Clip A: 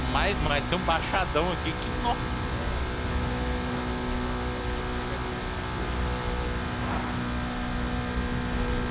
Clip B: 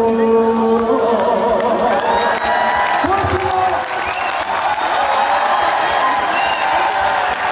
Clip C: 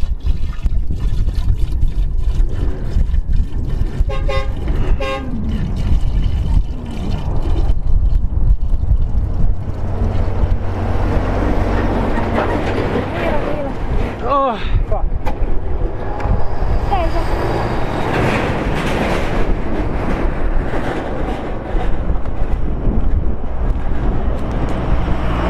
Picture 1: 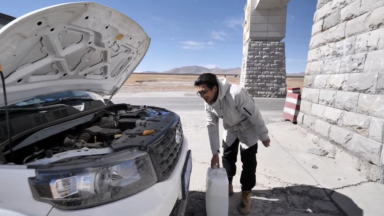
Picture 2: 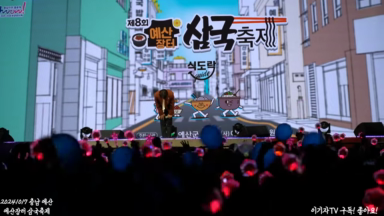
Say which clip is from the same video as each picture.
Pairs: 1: C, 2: B